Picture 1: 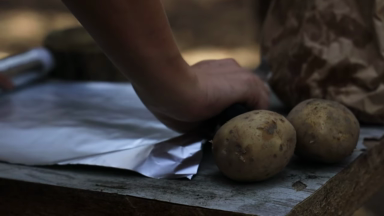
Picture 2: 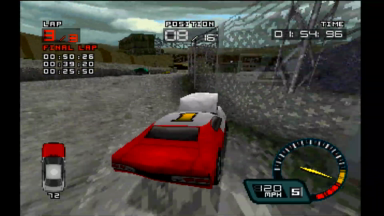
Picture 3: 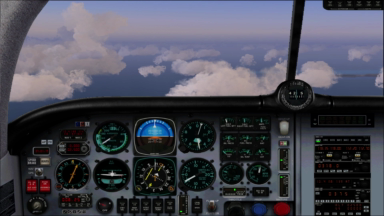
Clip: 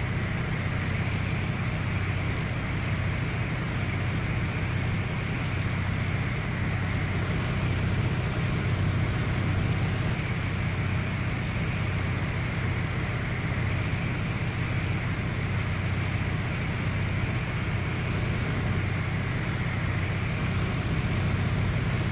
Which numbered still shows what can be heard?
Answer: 3